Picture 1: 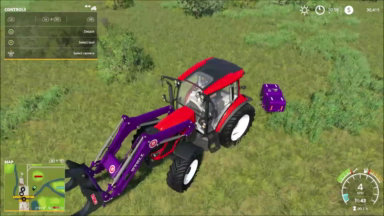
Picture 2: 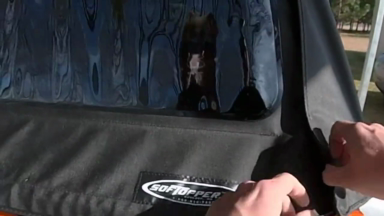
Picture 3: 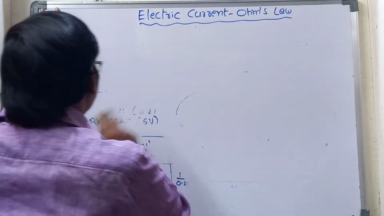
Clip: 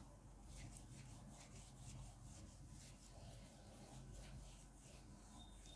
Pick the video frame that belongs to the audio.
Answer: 3